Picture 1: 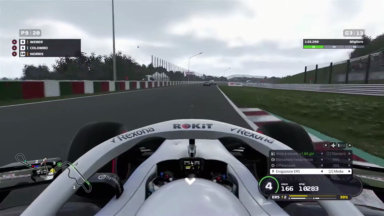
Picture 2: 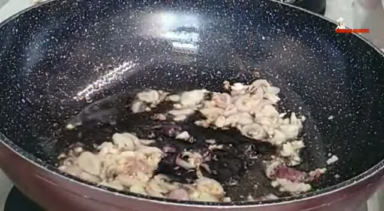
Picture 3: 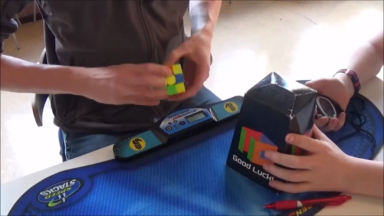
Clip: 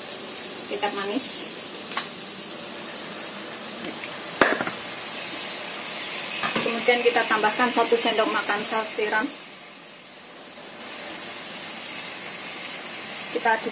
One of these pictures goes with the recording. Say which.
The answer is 2